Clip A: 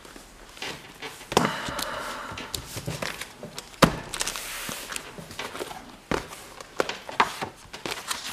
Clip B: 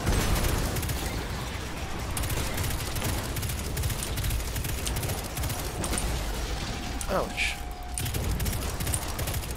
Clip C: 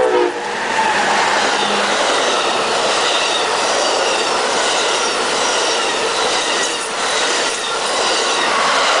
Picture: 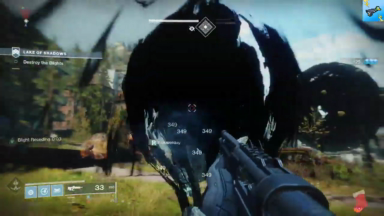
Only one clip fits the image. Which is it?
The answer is B